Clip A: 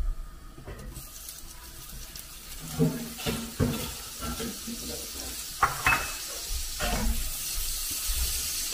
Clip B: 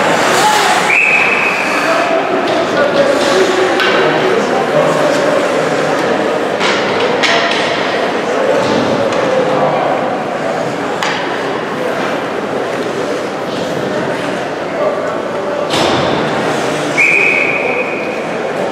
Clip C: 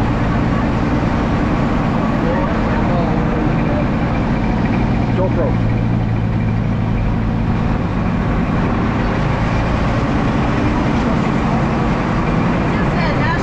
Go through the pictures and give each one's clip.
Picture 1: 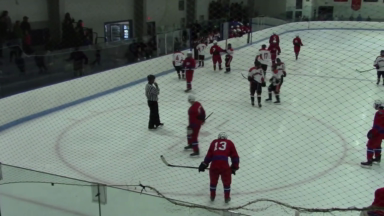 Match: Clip B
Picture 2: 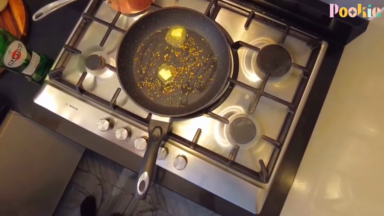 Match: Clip A